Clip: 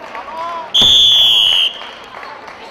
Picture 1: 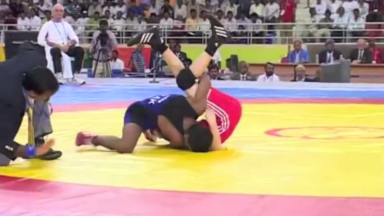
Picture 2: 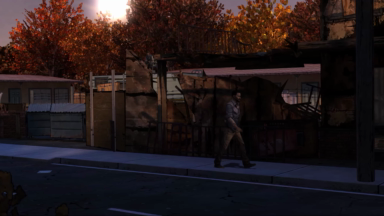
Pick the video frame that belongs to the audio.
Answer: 1